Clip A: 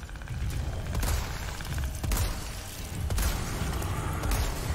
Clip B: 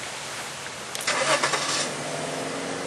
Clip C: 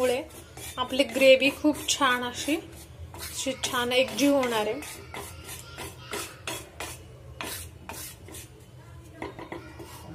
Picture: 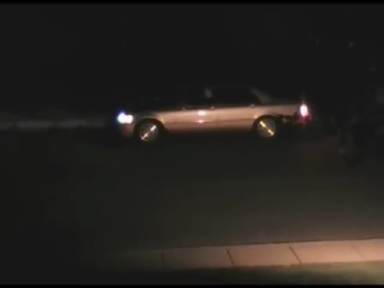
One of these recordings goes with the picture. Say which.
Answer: B